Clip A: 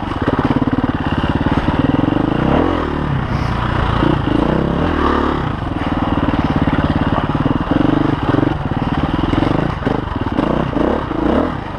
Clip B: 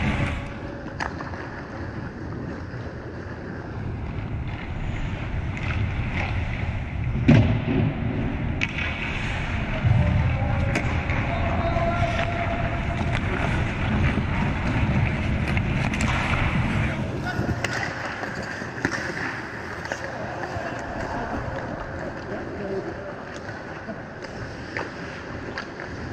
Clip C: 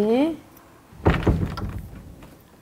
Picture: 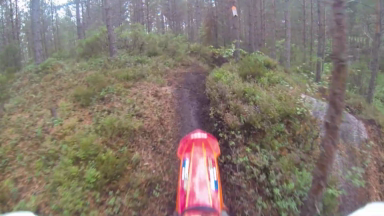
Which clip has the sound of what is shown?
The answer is A